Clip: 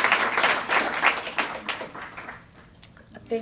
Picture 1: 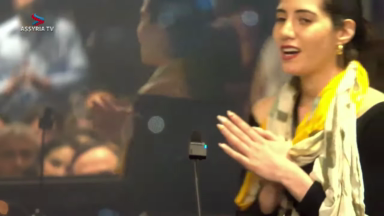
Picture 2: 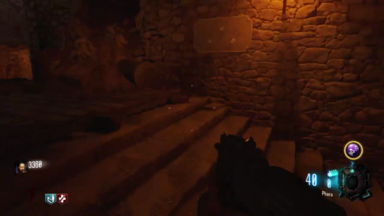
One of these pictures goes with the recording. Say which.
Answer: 1